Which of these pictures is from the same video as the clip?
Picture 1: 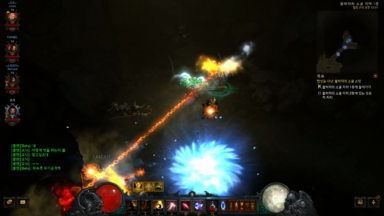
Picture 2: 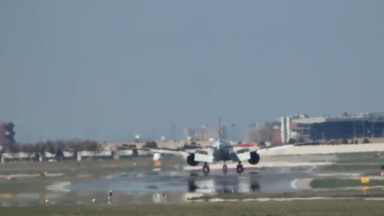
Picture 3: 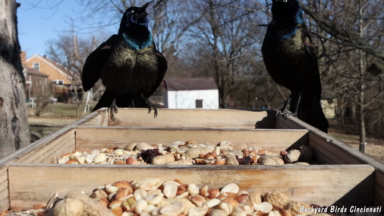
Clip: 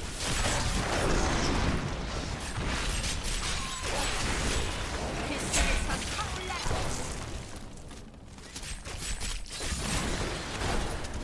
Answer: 1